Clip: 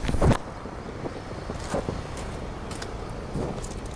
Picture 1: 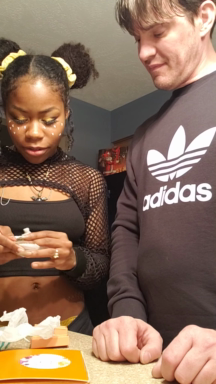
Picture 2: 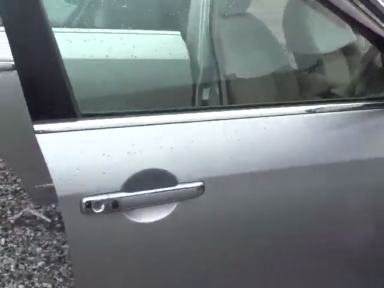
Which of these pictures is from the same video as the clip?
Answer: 2